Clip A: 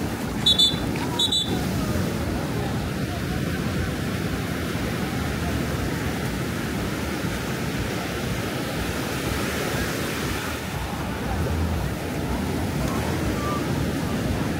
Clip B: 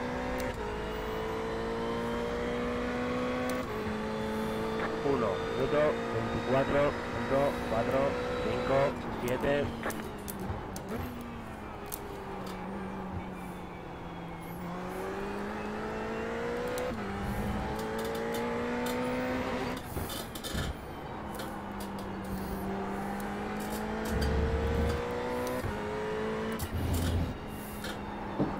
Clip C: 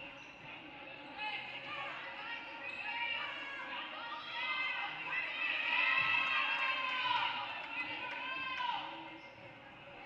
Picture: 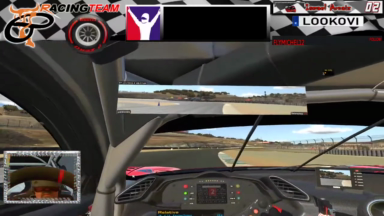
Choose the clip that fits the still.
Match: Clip B